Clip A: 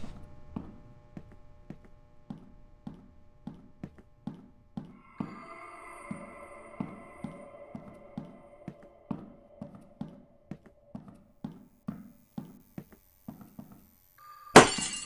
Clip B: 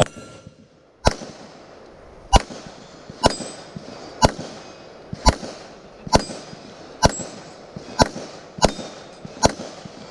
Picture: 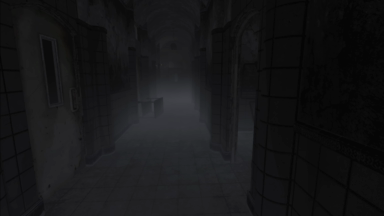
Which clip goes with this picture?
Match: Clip A